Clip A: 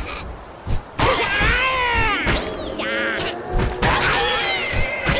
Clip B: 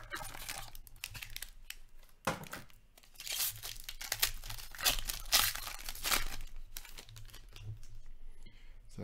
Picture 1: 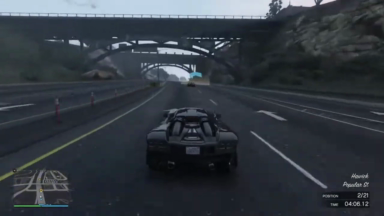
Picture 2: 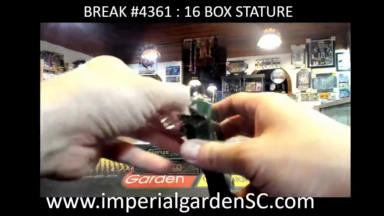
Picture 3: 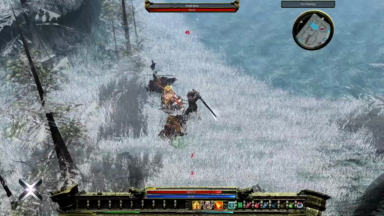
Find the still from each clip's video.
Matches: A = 3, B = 2